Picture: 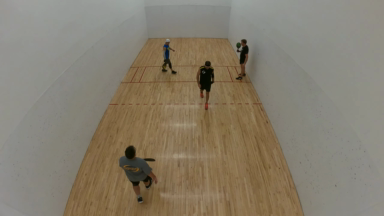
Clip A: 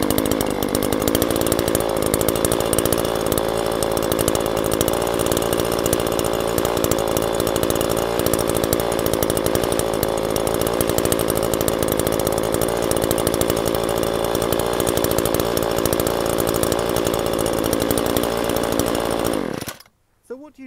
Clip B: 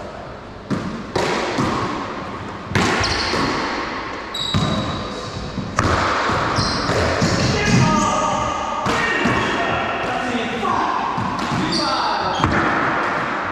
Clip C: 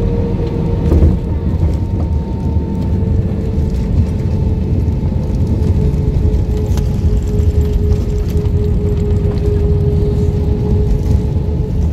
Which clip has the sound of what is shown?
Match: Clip B